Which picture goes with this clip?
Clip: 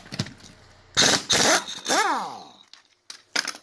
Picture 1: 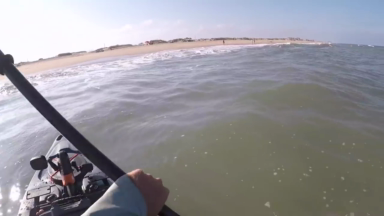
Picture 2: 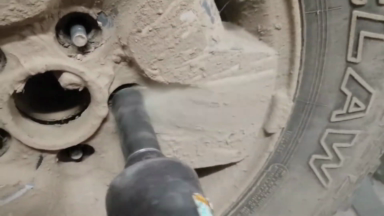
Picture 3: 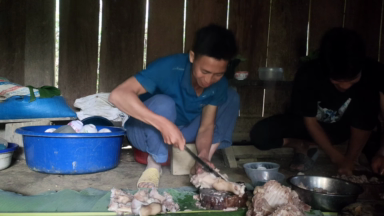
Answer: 2